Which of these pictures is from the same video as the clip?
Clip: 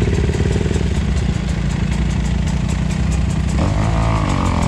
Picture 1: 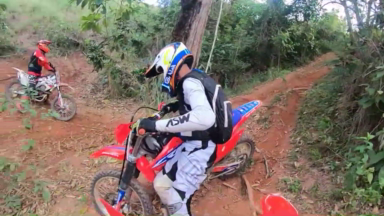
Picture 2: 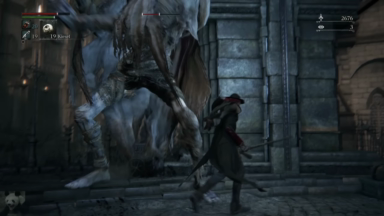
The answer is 1